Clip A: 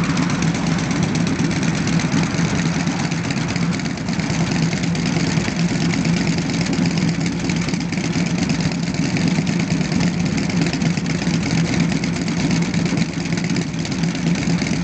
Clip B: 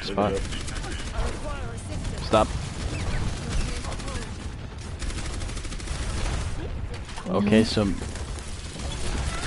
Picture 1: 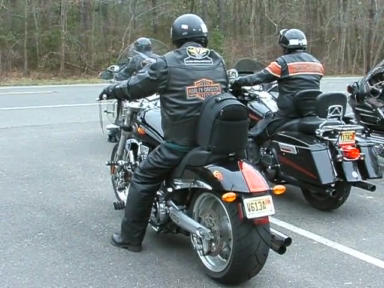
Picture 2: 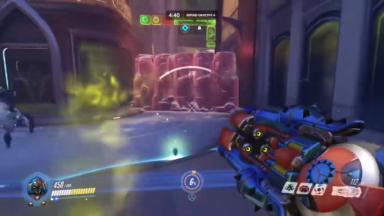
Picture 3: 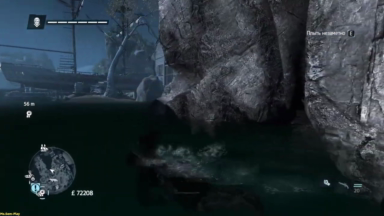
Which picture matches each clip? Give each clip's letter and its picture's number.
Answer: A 1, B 2